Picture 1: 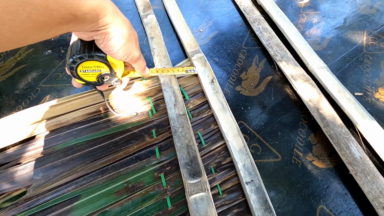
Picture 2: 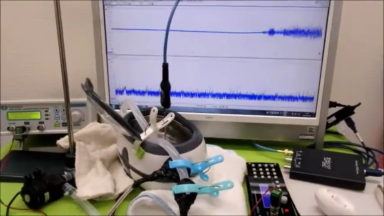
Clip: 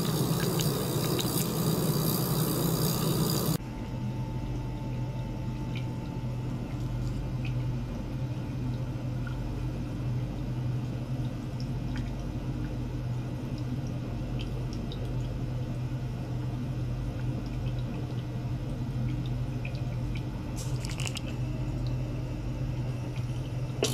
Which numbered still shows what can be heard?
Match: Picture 2